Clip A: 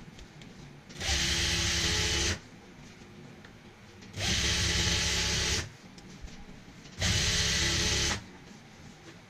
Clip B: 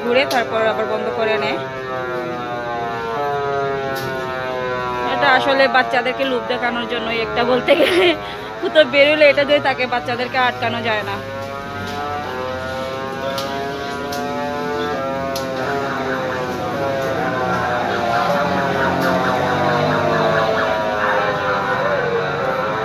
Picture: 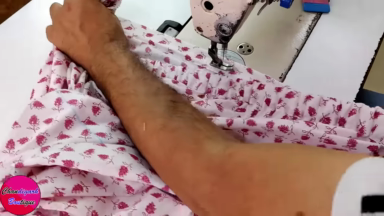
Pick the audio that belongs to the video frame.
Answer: A